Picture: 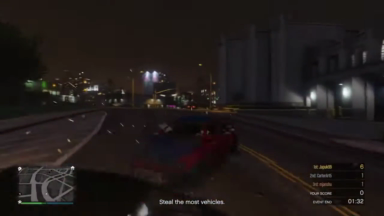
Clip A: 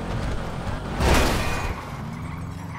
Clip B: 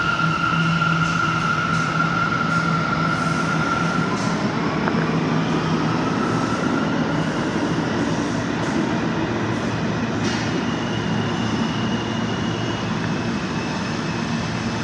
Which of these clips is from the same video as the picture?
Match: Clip A